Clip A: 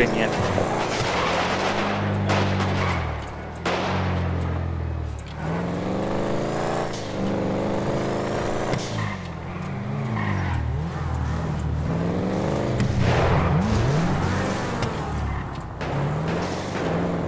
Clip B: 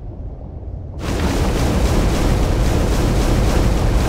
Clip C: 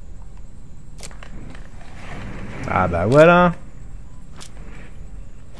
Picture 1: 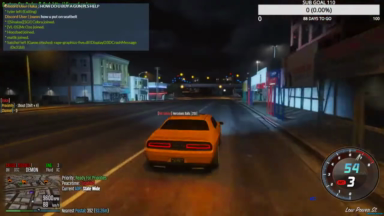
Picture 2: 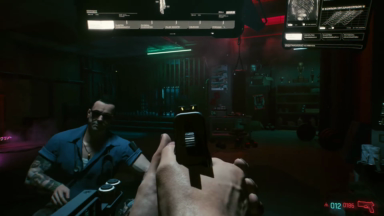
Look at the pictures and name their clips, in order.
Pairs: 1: A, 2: C